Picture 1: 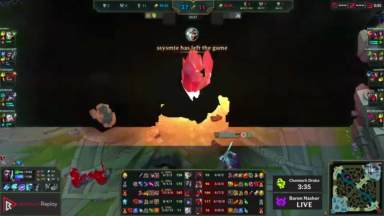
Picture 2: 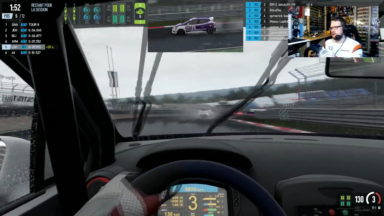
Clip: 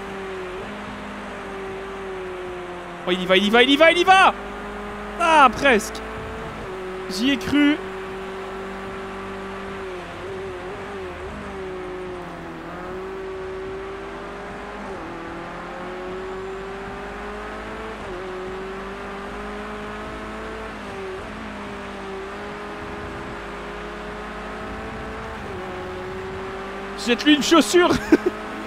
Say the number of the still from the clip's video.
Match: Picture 2